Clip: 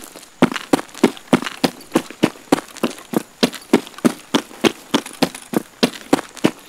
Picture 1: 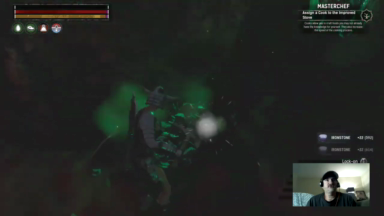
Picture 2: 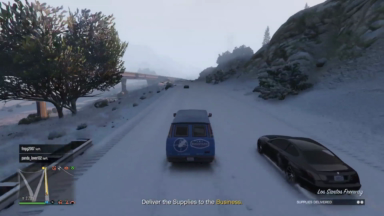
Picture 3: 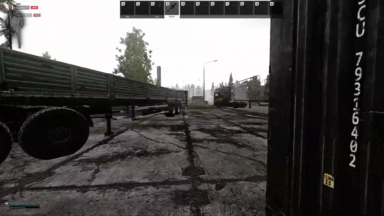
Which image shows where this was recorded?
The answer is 3